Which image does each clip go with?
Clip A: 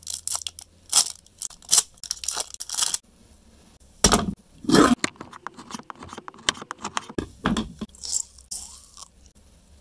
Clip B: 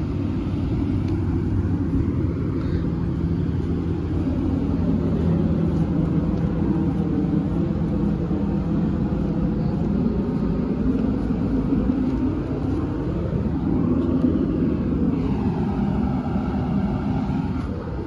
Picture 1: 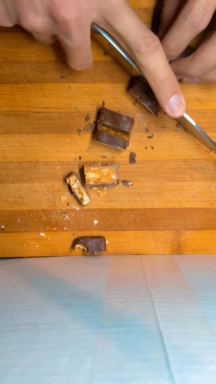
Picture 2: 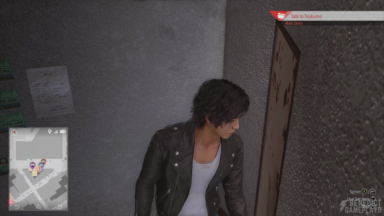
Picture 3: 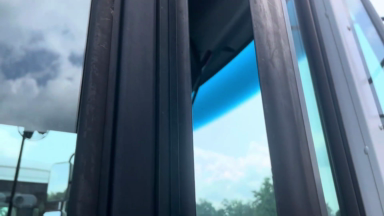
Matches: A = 1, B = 3